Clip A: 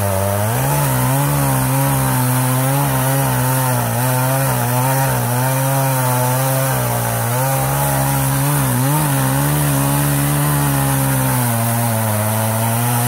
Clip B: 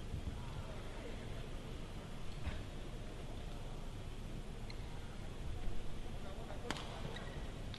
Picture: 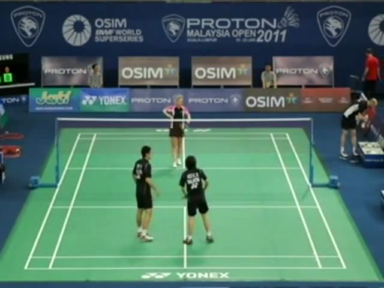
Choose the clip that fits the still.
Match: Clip B